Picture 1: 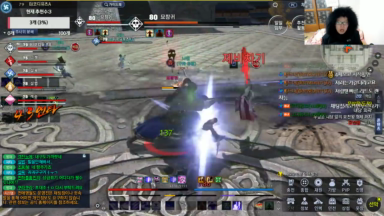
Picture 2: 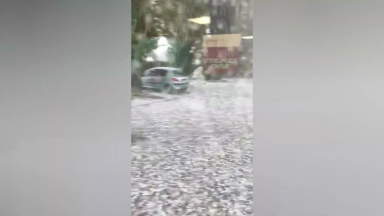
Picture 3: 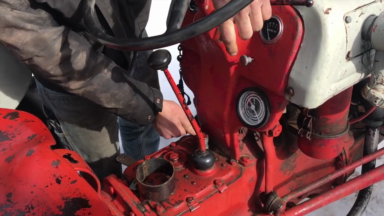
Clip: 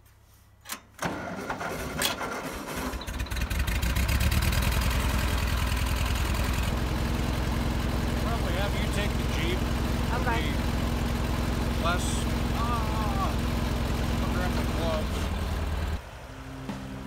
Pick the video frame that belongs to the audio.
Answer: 3